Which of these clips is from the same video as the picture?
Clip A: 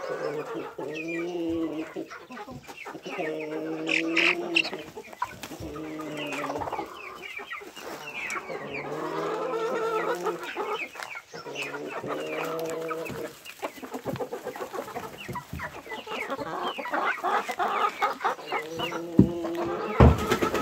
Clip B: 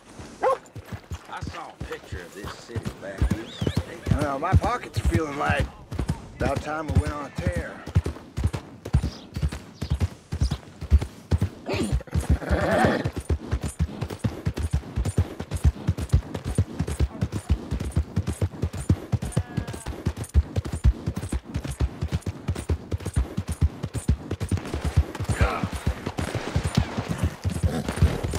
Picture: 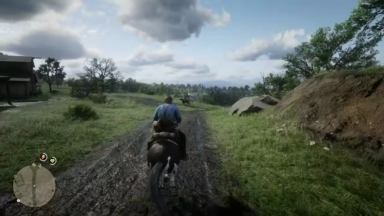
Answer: B